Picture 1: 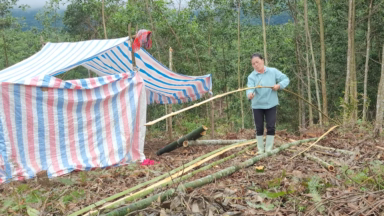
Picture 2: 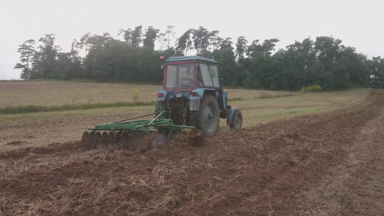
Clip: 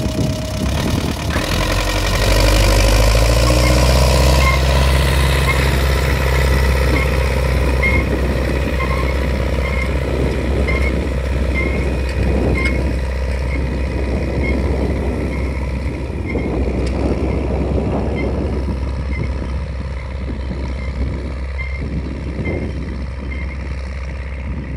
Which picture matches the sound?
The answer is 2